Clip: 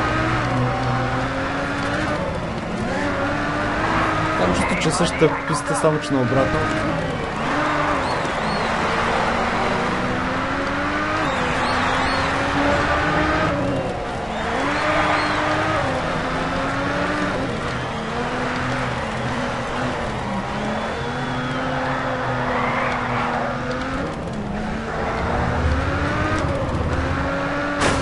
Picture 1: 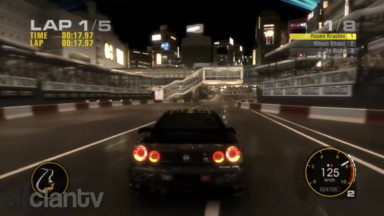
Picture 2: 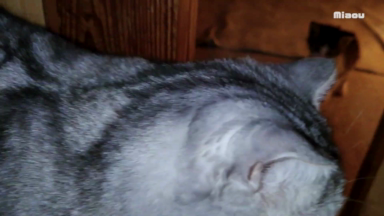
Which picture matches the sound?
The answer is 1